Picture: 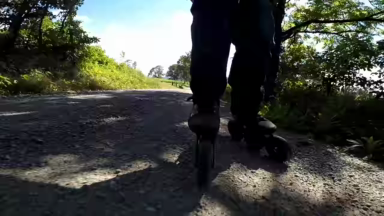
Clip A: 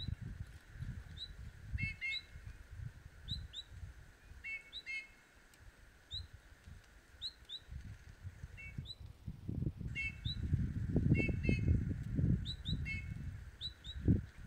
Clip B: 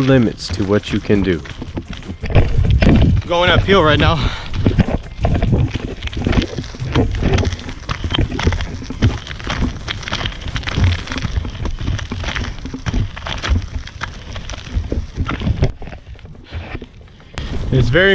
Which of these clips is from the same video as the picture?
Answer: B